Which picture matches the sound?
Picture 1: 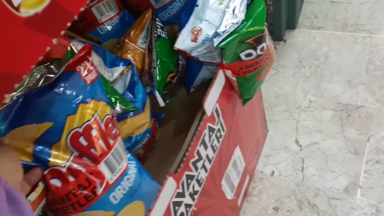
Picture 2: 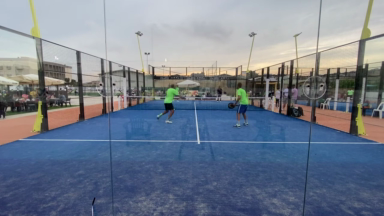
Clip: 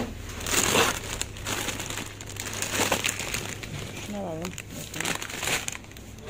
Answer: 1